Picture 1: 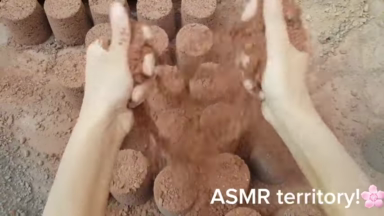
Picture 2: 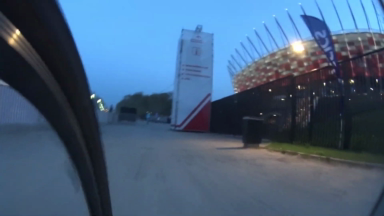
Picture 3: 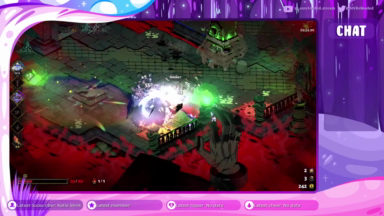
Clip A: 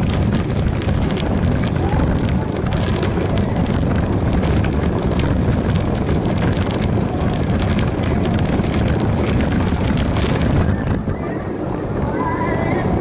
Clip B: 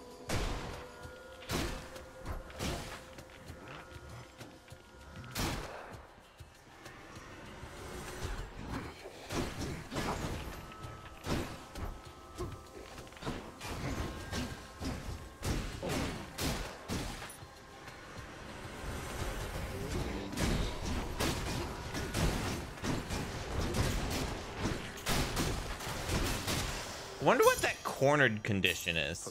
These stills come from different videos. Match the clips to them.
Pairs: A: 2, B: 3